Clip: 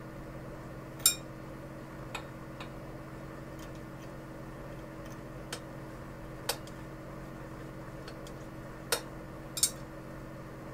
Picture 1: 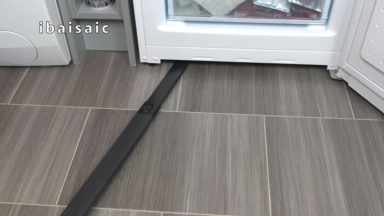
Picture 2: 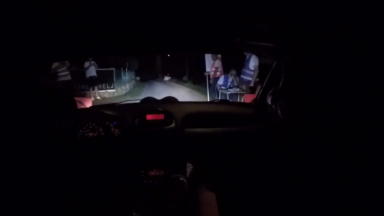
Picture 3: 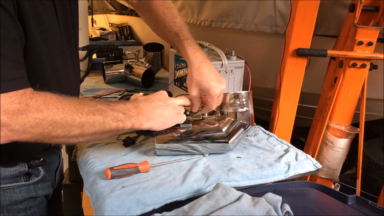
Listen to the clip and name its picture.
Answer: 3